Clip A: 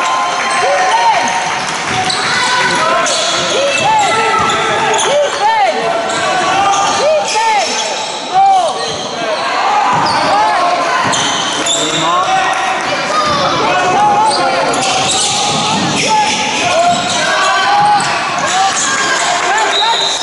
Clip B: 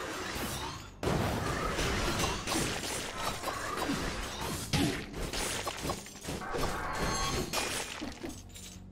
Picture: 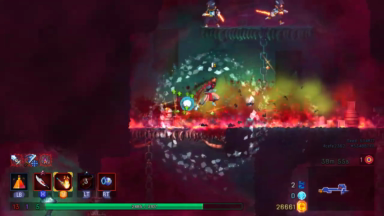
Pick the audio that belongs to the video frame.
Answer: B